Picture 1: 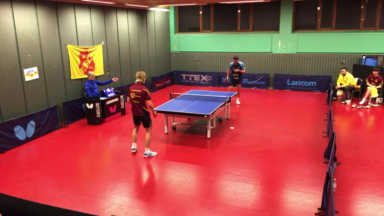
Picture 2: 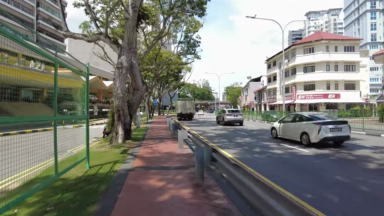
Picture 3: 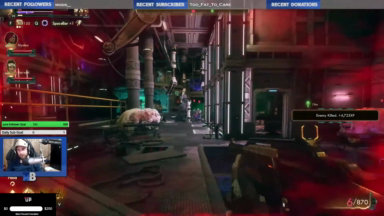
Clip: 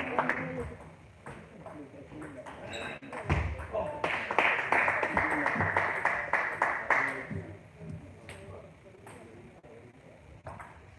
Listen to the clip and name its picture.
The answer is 1